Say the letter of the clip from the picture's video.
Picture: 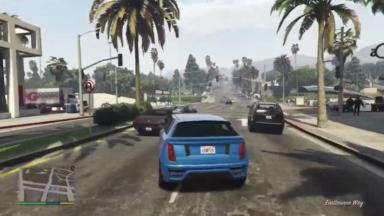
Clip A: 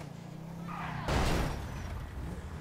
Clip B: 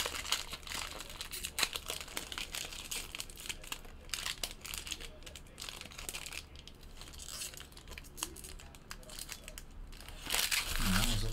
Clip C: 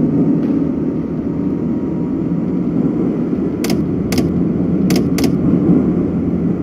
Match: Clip A